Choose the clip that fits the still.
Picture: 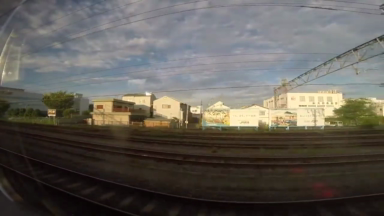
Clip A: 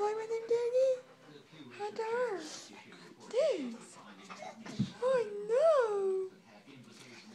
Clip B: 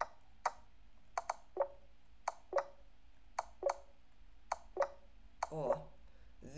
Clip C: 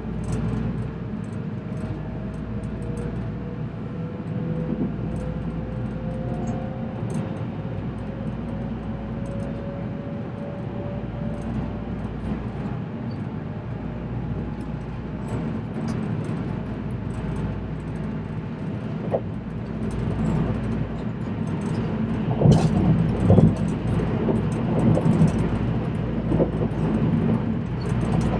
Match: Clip C